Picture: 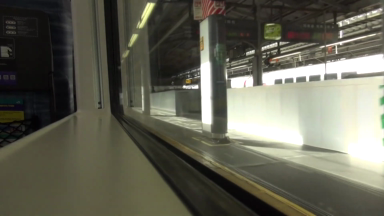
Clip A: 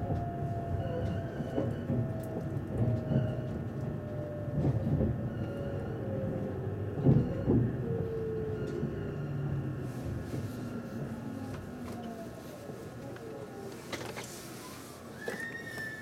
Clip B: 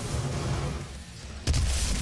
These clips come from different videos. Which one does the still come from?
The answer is A